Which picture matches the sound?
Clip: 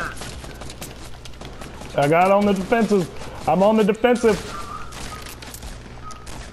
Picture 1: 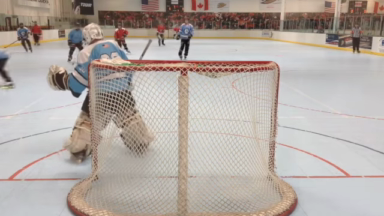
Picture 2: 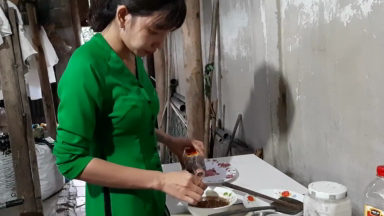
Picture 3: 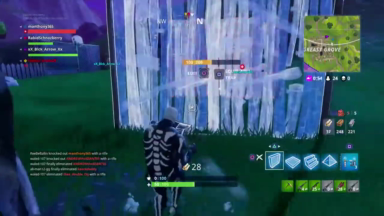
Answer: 3